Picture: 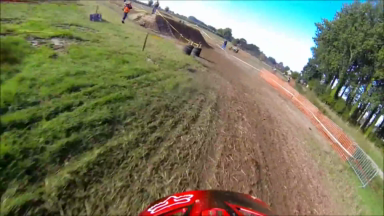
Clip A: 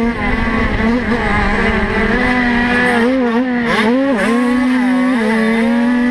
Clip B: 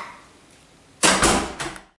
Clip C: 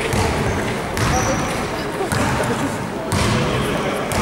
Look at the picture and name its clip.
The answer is A